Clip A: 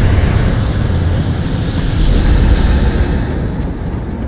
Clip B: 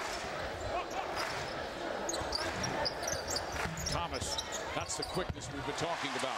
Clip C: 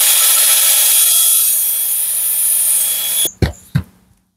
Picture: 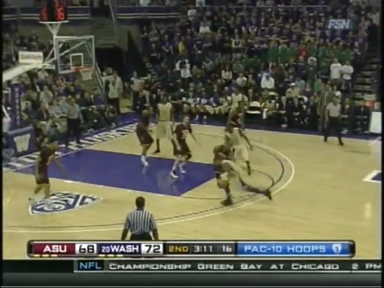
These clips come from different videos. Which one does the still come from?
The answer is B